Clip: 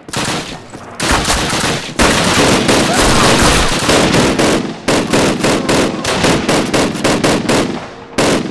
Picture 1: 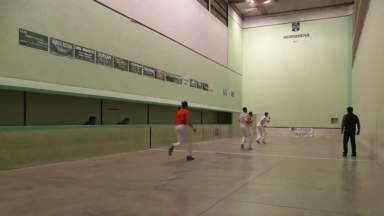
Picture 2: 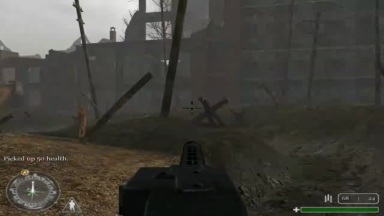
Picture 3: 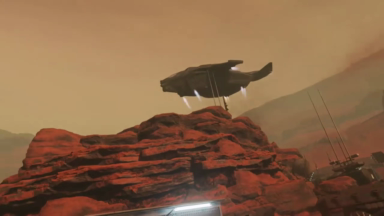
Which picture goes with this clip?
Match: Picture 2